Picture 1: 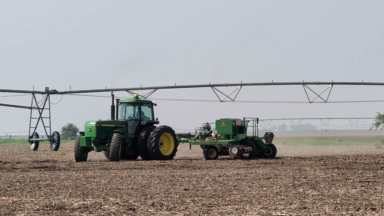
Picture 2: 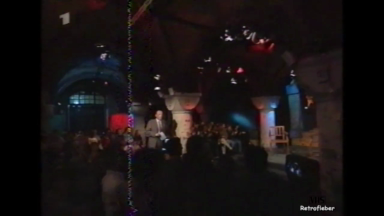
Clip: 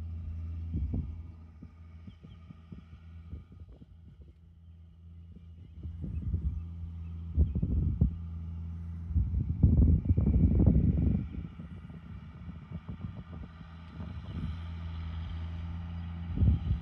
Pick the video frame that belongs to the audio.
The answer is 1